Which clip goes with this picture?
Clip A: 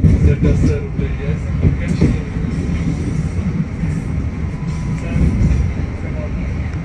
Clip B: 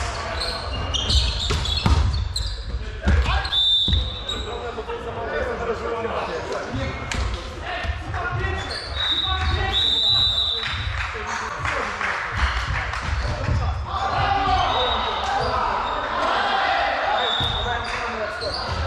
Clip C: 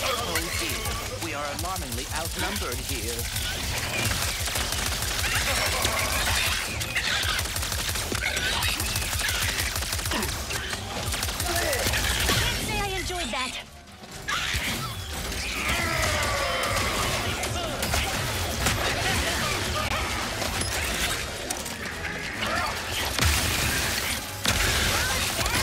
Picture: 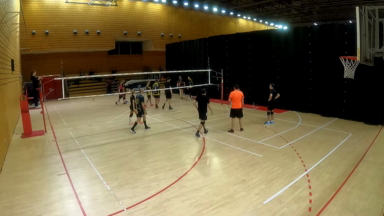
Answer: B